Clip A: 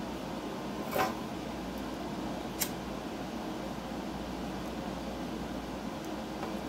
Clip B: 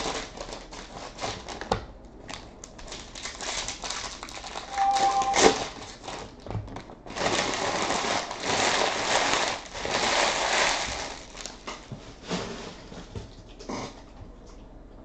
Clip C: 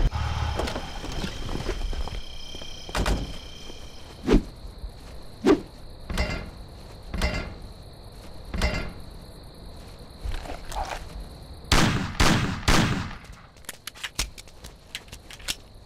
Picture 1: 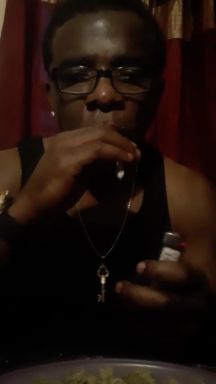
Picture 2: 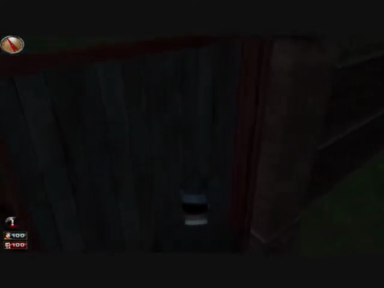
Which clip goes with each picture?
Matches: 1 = A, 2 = C